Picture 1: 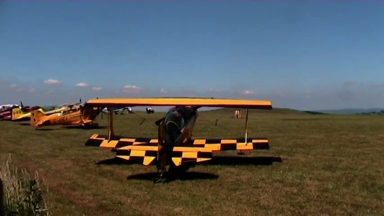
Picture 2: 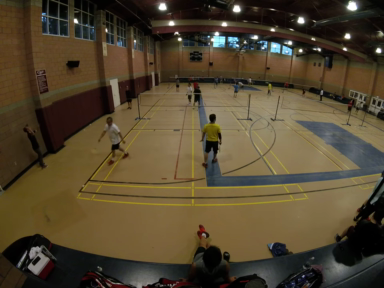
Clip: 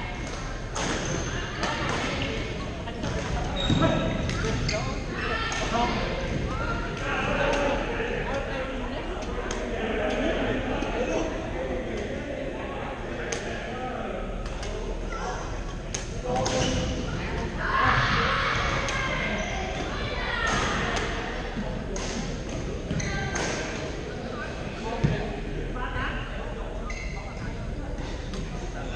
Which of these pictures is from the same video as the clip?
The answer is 2